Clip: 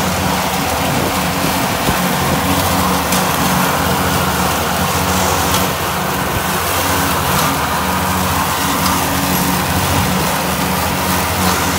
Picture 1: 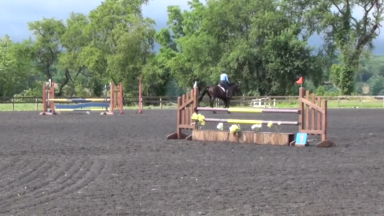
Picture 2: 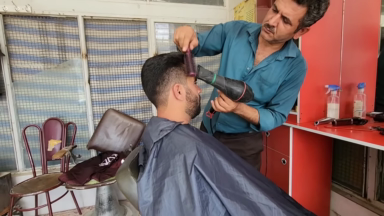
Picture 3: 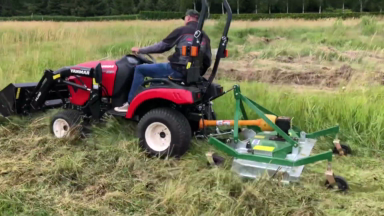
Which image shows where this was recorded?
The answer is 3